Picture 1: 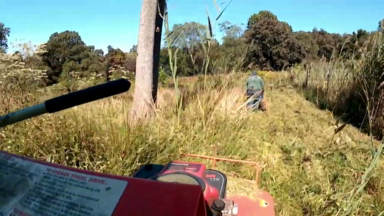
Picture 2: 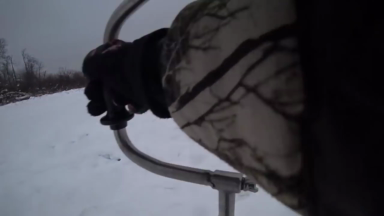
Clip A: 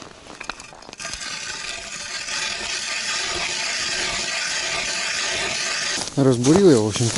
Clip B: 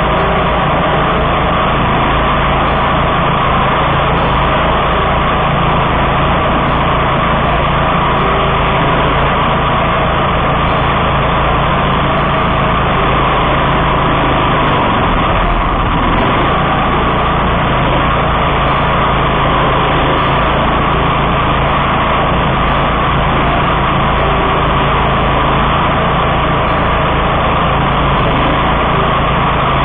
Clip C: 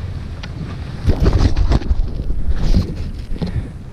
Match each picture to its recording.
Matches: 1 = B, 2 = A